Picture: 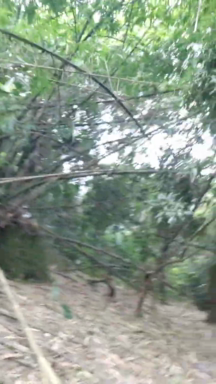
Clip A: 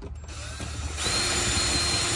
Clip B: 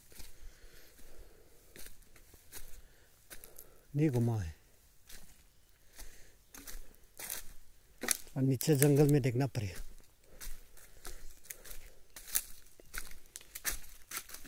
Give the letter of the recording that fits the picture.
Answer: B